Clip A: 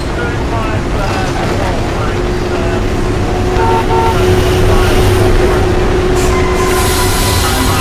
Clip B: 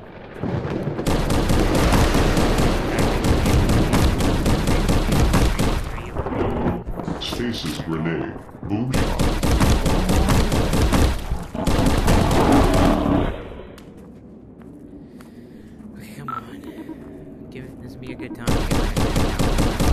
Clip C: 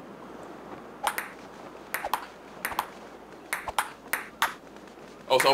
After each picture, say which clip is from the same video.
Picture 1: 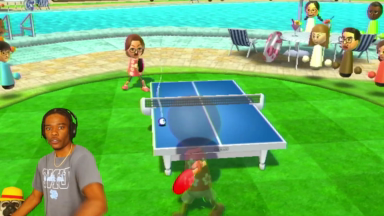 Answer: C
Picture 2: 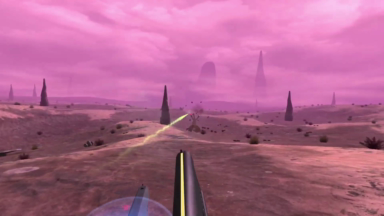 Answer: B